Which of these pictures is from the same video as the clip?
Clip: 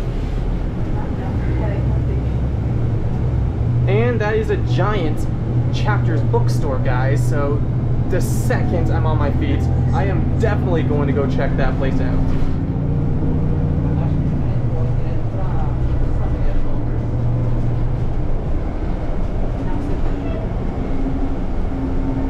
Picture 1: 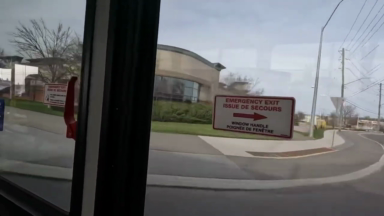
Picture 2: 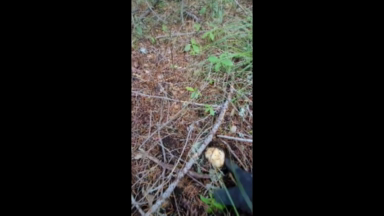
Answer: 1